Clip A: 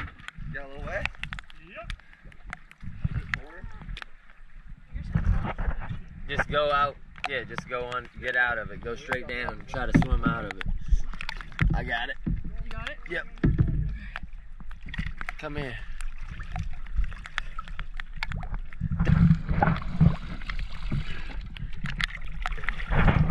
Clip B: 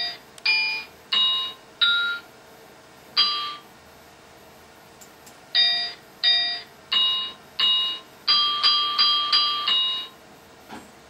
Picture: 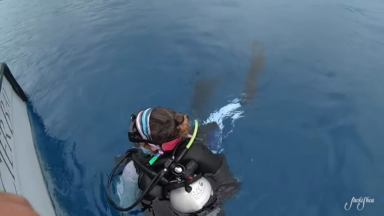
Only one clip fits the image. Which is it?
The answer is A